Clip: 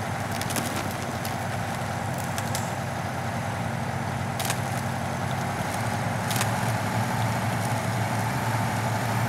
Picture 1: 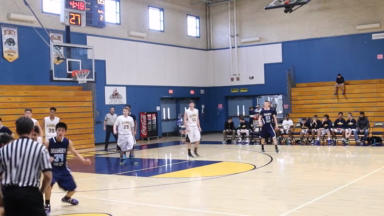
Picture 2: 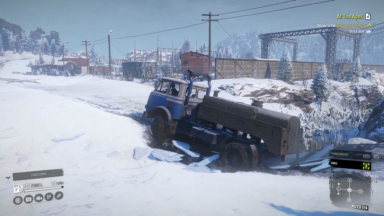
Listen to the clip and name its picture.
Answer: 2